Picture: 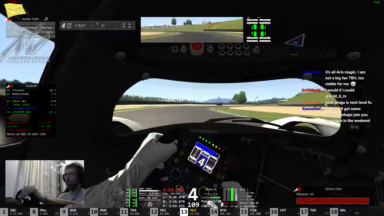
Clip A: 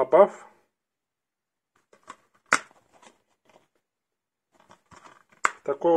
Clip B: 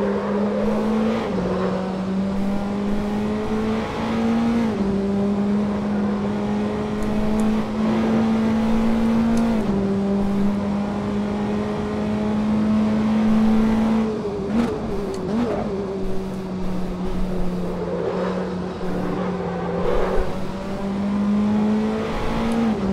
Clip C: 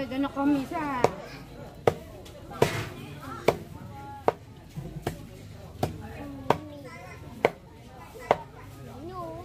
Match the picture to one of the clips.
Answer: B